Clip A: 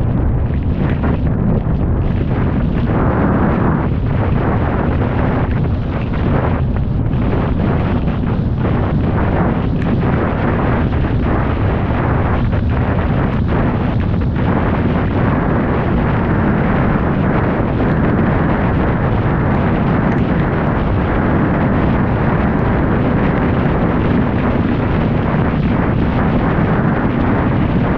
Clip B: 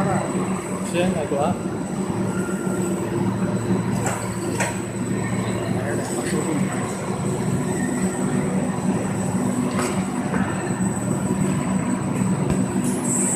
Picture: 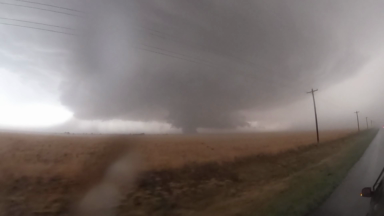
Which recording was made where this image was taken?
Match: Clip A